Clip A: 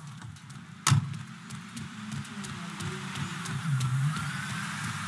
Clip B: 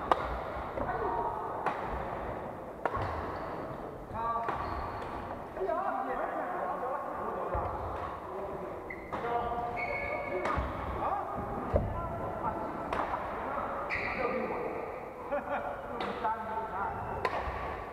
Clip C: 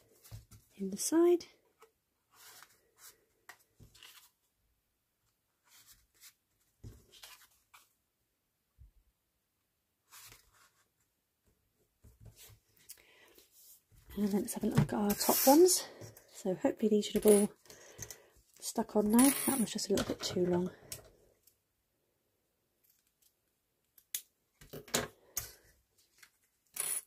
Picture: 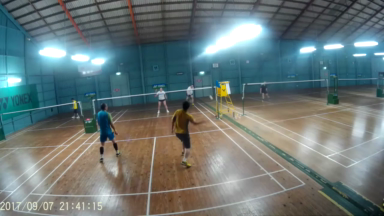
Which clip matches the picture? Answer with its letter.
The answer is B